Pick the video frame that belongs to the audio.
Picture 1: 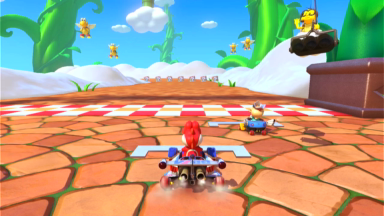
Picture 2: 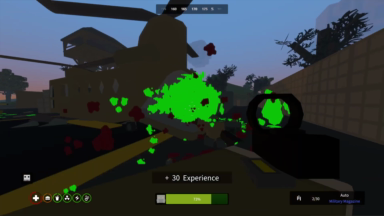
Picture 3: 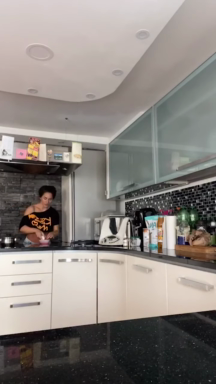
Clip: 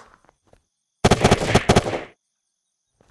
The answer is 2